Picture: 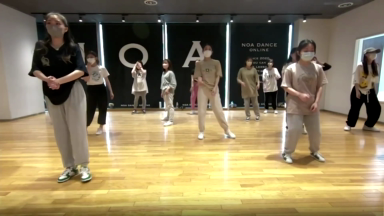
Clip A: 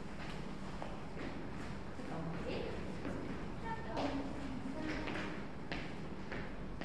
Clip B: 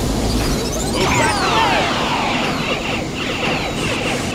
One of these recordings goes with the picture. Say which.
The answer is A